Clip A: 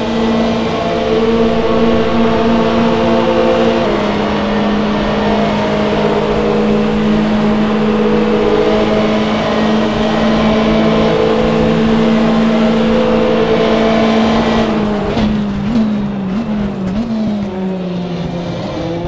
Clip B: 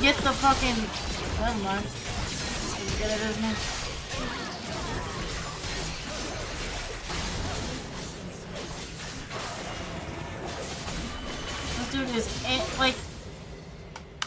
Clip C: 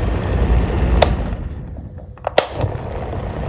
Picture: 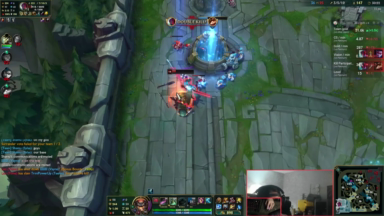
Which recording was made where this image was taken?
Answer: B